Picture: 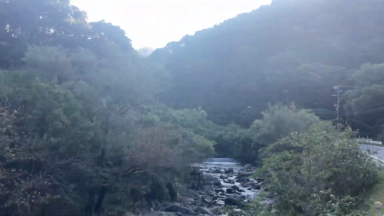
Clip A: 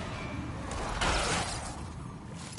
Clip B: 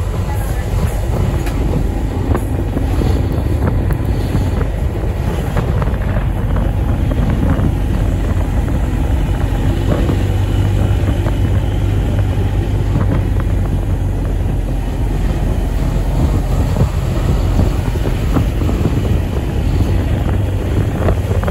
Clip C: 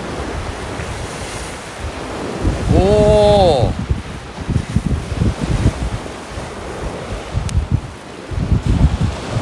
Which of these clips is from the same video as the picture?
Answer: B